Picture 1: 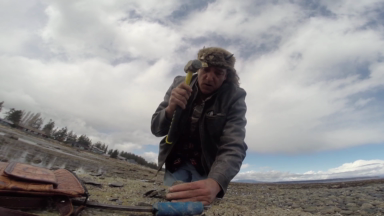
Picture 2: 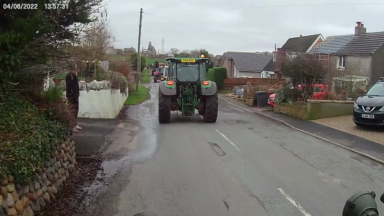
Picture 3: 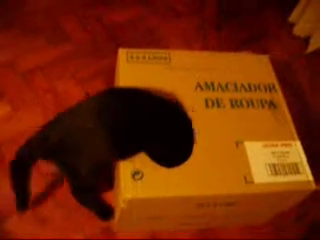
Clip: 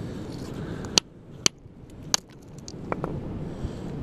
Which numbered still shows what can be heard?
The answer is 1